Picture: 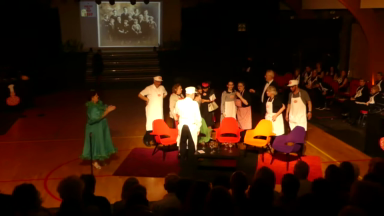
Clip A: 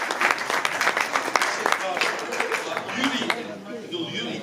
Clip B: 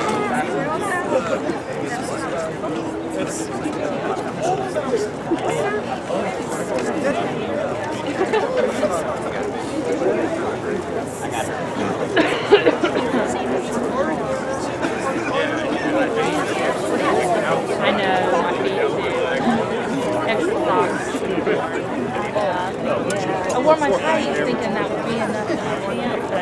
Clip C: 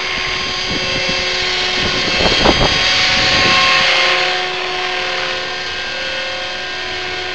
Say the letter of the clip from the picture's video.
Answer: A